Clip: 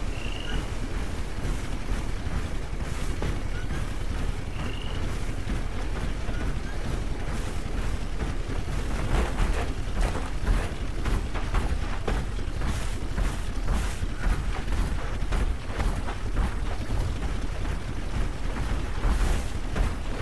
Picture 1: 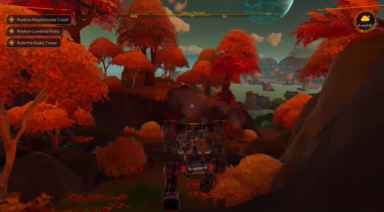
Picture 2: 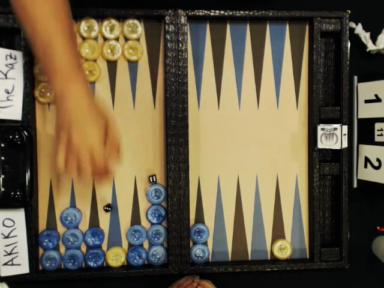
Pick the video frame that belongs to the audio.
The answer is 1